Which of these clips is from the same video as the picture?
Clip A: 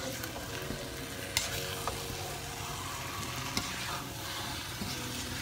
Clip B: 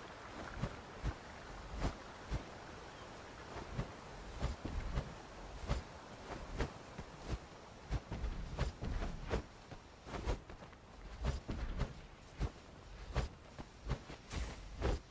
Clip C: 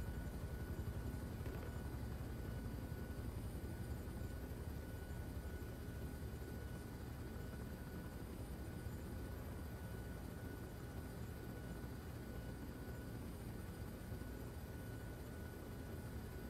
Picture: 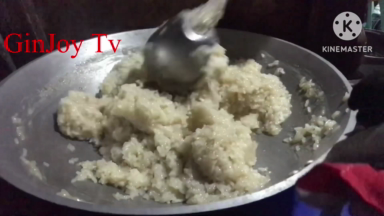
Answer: A